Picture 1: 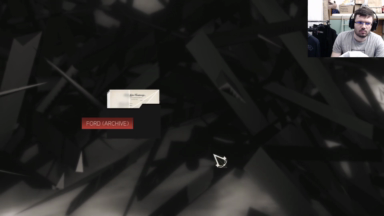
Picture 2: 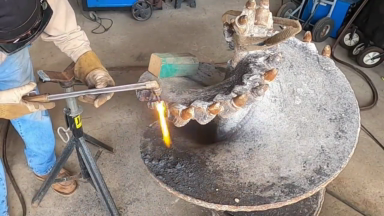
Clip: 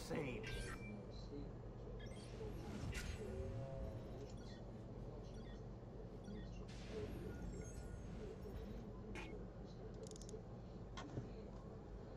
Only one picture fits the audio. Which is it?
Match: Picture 1